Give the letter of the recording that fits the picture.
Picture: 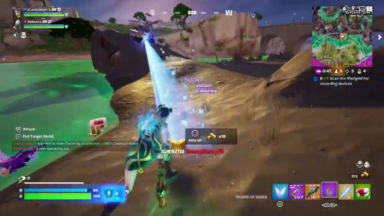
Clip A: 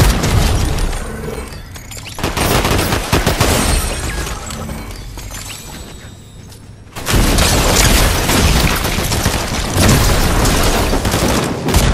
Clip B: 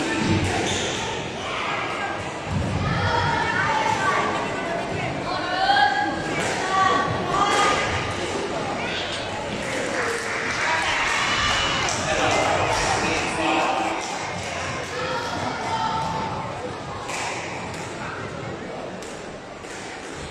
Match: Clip A